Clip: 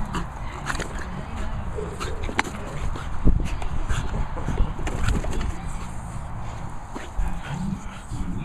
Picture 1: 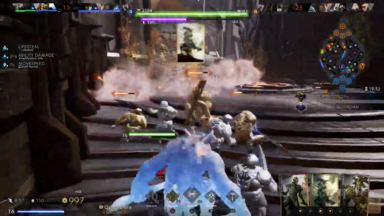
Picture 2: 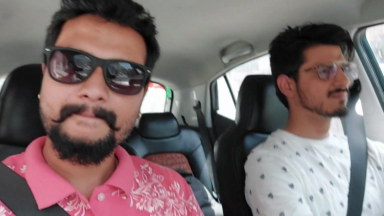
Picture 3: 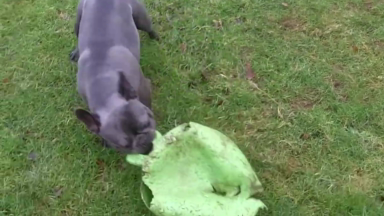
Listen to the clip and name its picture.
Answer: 3